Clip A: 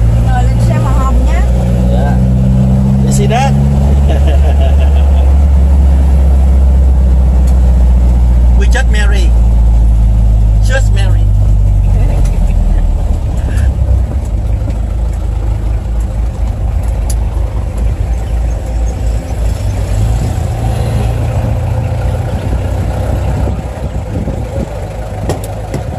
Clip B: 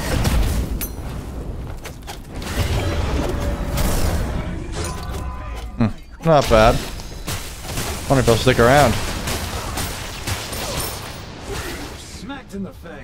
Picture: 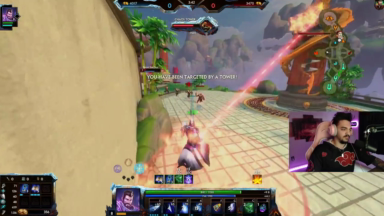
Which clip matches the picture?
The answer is B